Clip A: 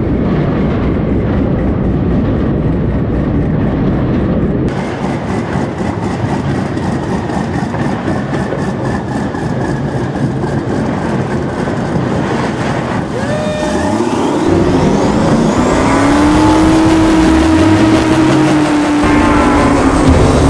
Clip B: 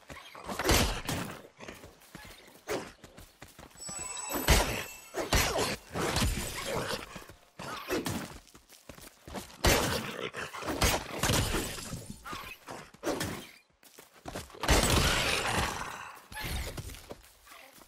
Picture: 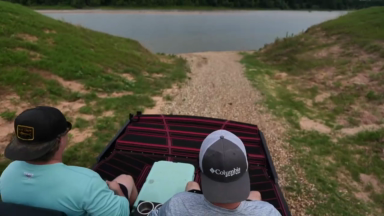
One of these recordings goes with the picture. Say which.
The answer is A